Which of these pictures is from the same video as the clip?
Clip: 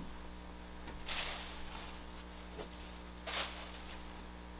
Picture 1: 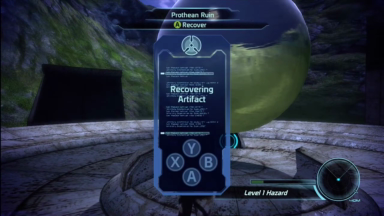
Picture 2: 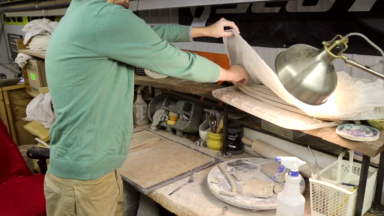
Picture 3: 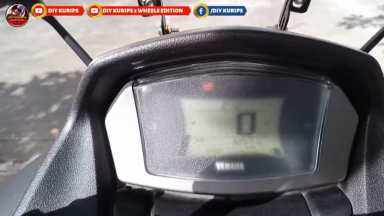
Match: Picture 2